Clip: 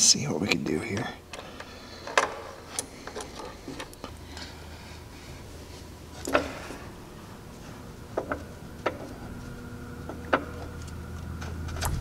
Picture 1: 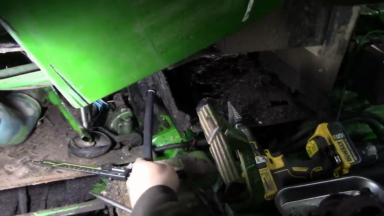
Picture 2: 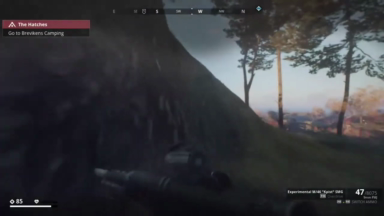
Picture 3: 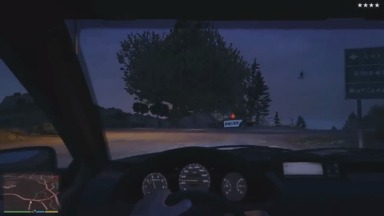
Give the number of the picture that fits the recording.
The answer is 1